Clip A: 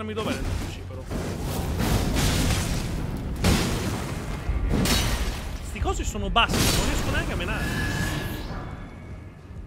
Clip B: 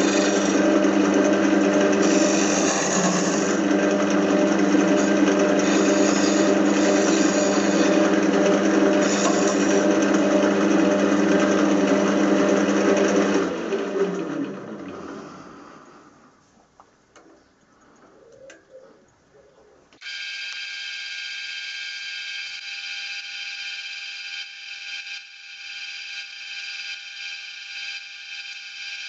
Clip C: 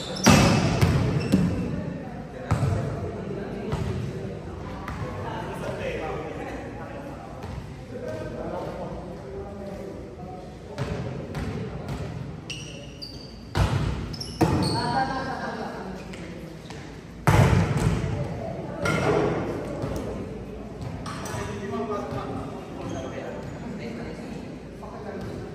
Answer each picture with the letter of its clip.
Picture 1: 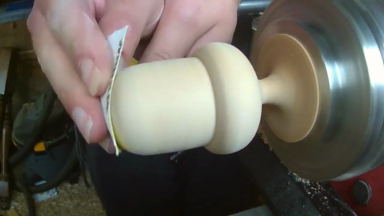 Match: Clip B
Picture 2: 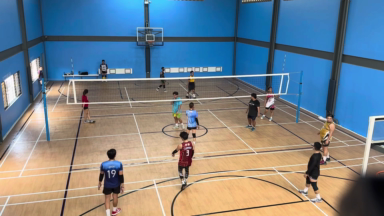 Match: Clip C